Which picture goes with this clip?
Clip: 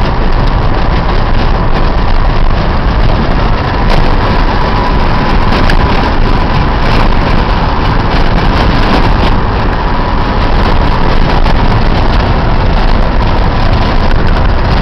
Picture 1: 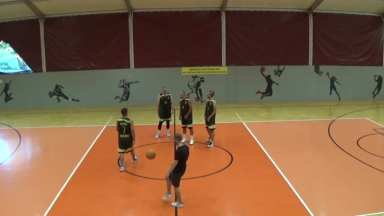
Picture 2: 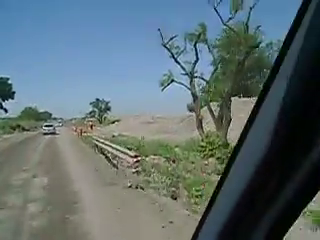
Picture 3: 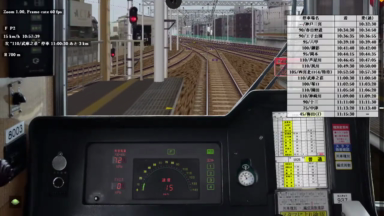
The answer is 2